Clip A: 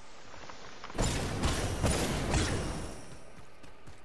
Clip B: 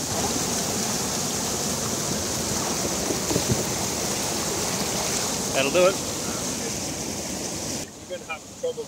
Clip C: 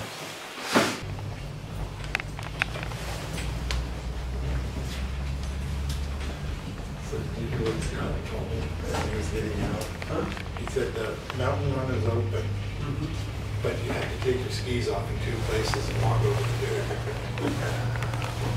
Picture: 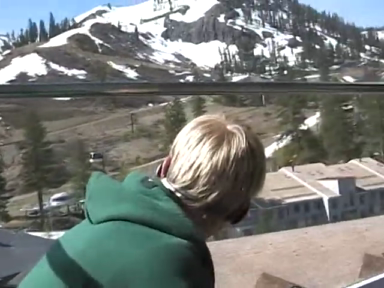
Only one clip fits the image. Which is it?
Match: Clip C